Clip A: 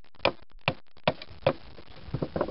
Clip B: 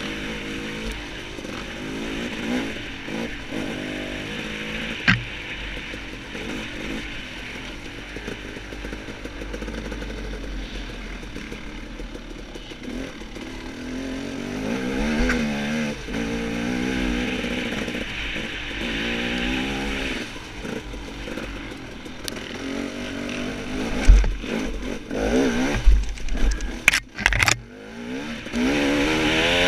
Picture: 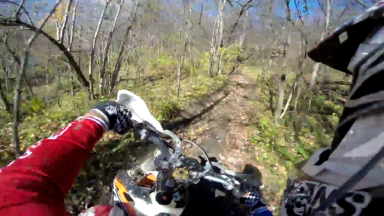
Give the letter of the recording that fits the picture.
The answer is B